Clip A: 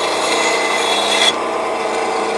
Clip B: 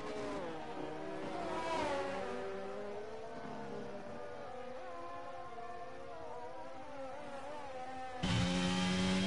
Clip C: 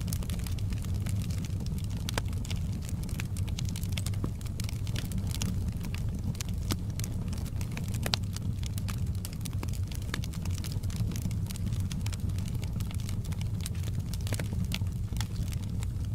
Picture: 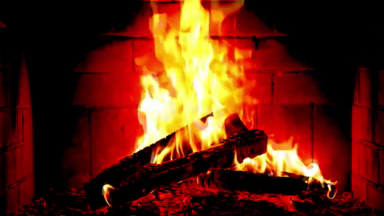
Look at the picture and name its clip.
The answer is C